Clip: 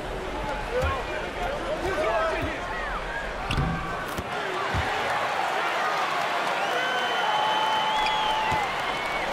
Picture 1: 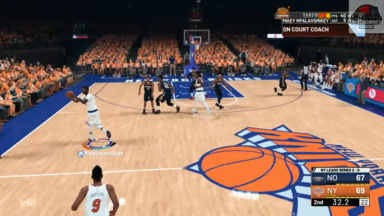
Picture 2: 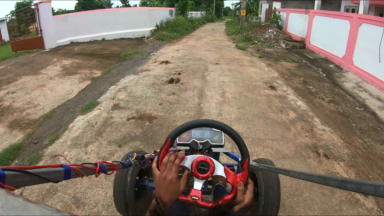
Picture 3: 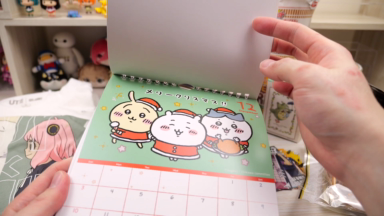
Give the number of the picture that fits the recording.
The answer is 1